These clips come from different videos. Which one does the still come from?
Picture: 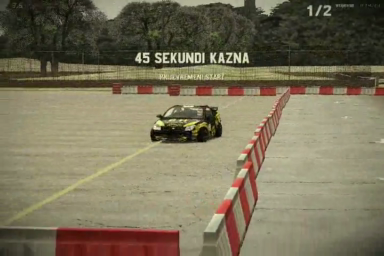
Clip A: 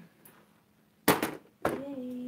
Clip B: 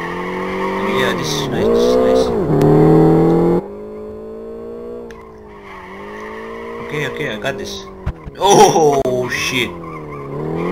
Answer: B